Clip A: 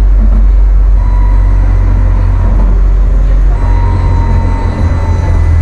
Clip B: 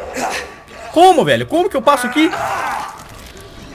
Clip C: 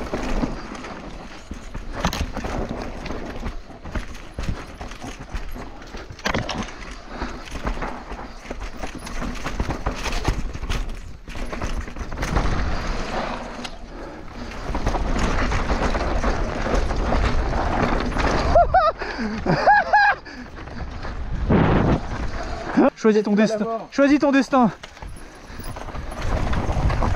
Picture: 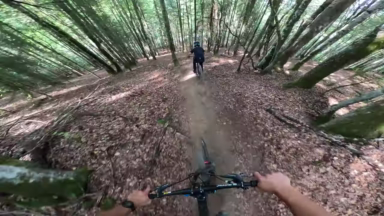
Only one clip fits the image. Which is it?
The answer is C